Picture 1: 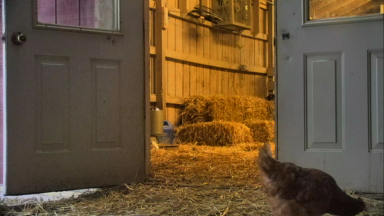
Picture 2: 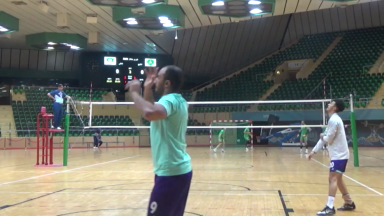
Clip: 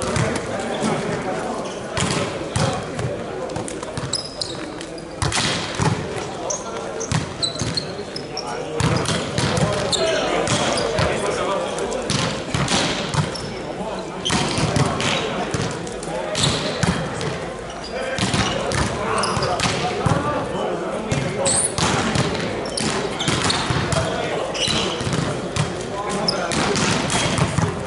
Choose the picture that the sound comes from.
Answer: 2